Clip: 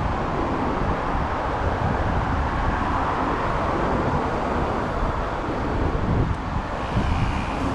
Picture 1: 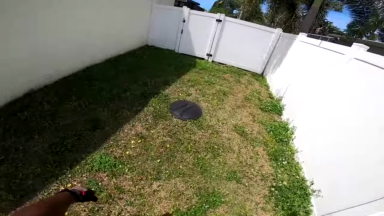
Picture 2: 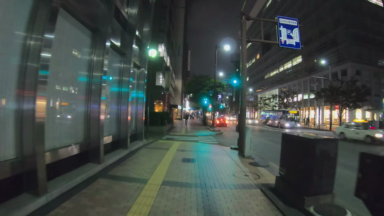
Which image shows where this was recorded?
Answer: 2